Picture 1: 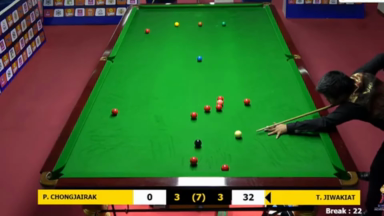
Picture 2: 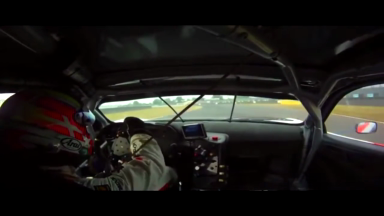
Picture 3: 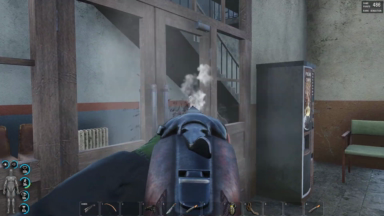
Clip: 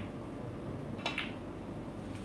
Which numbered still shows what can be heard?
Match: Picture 1